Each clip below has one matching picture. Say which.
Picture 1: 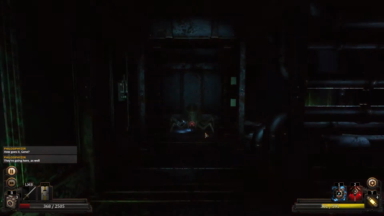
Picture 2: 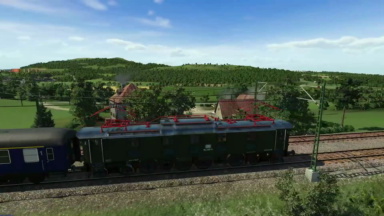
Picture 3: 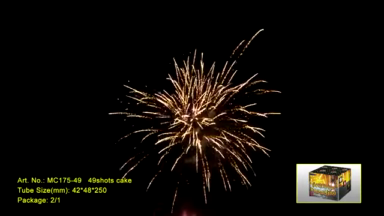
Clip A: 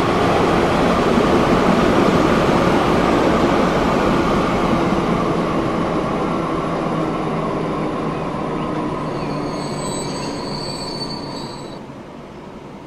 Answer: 2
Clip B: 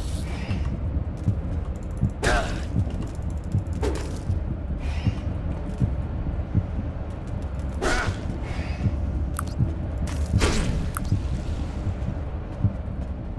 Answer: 1